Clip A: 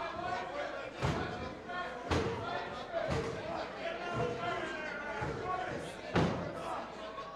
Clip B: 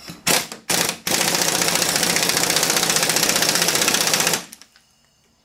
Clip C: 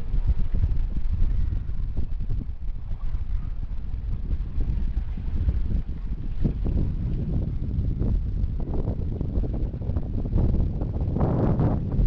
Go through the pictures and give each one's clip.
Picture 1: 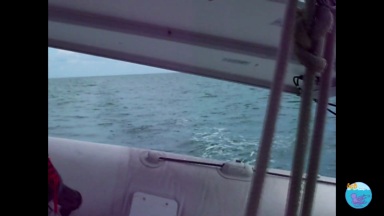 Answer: C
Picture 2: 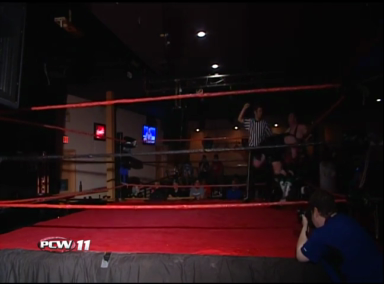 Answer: A